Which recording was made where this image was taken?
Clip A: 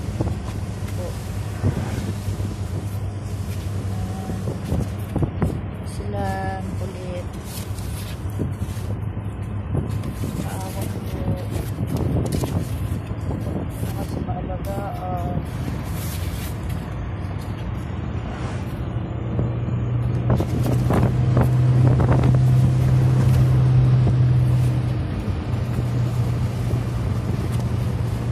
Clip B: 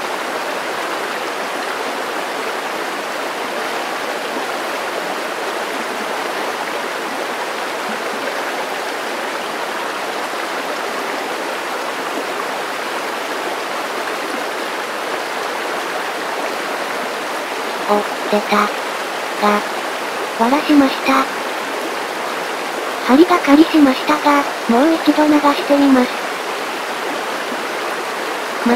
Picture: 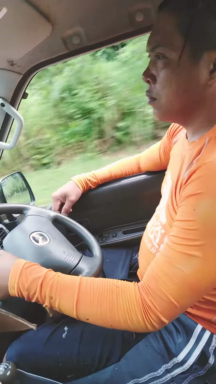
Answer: A